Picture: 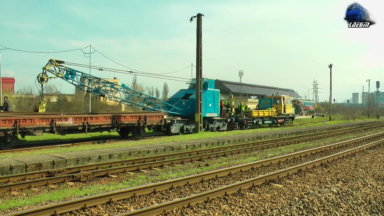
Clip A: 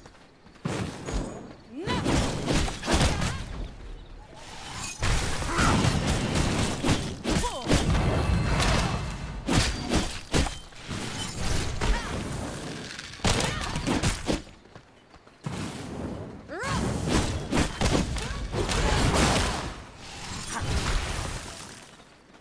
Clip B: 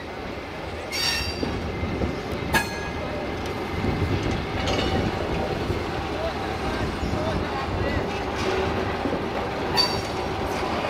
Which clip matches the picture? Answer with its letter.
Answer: B